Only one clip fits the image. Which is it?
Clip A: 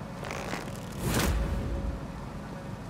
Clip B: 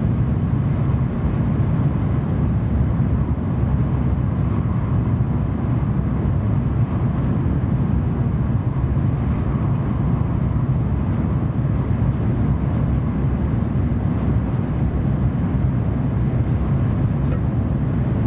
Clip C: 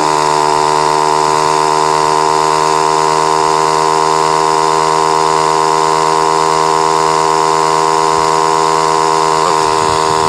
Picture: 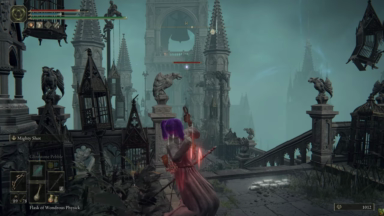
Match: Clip A